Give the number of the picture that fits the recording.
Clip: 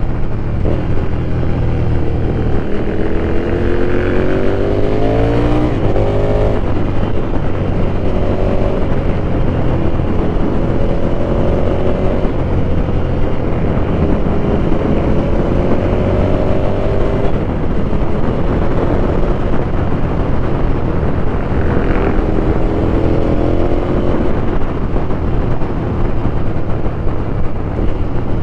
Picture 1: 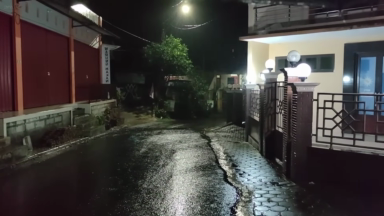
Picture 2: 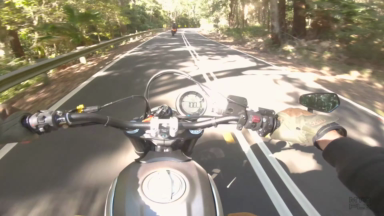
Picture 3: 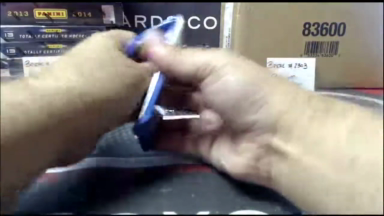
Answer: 2